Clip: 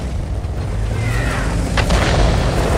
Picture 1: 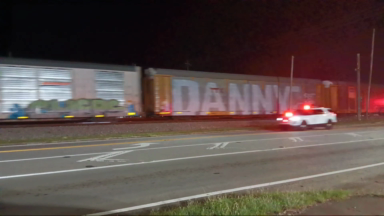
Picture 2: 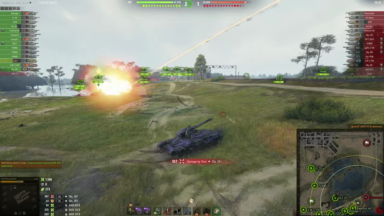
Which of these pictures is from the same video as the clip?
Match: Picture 2